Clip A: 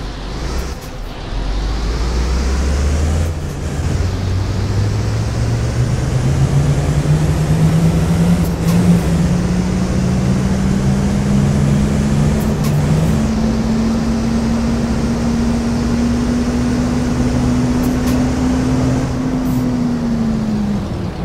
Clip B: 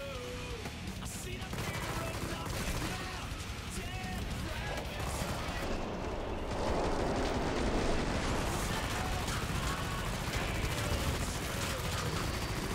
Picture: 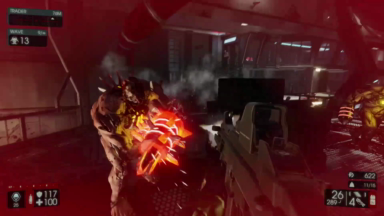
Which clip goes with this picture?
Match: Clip B